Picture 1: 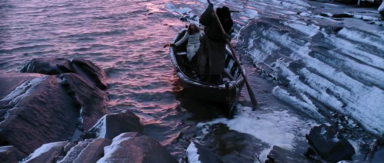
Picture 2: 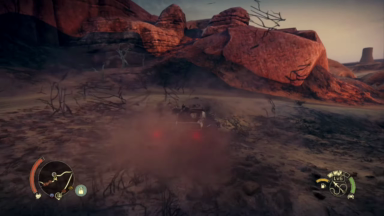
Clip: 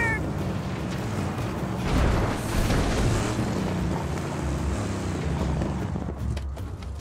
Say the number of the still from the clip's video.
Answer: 2